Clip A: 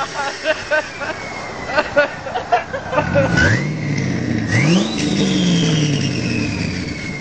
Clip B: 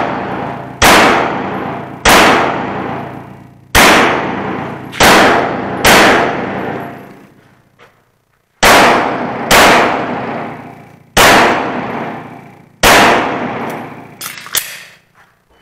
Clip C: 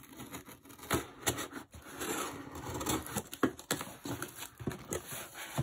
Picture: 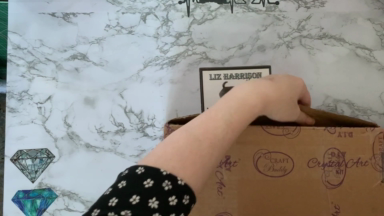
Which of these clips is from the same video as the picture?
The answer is C